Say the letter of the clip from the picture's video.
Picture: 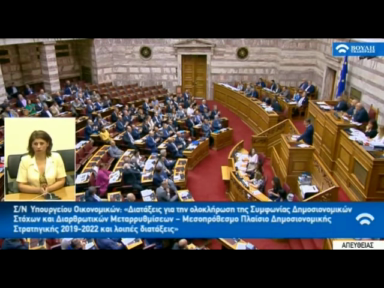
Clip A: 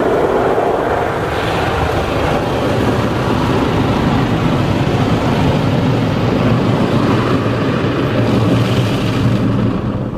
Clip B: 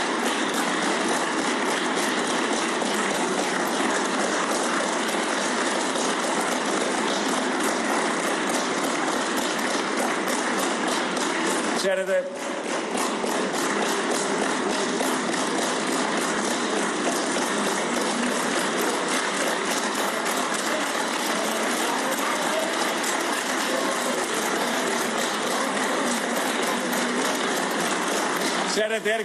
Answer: B